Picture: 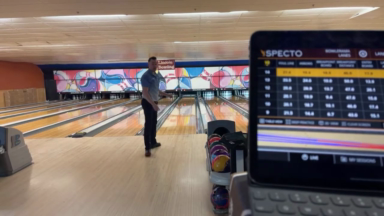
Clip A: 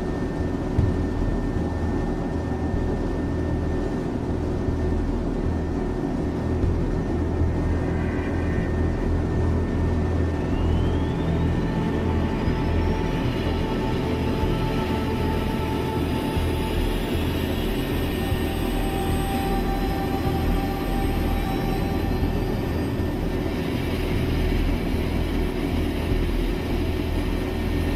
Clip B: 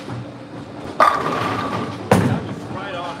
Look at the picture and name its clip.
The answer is B